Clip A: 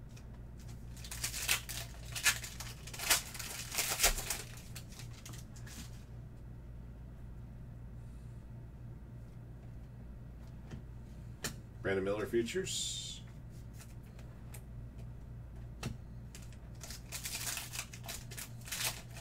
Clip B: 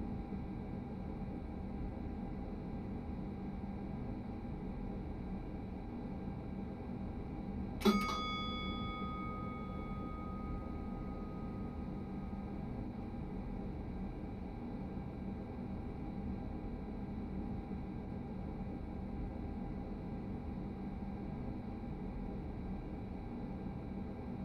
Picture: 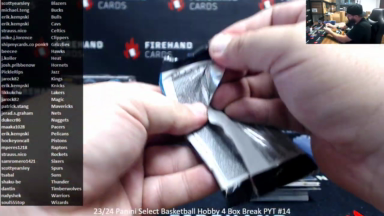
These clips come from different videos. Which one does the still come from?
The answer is A